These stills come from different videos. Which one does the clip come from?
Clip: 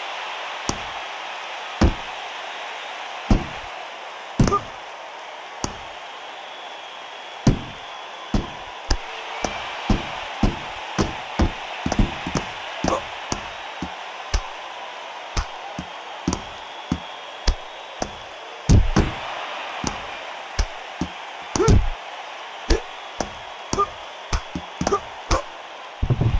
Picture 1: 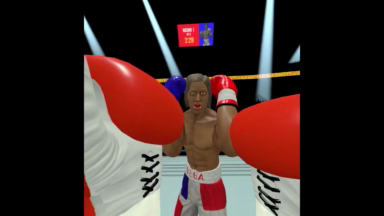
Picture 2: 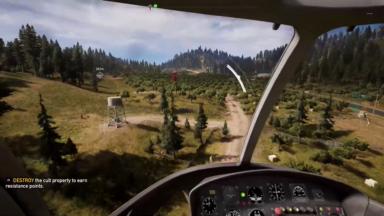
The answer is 1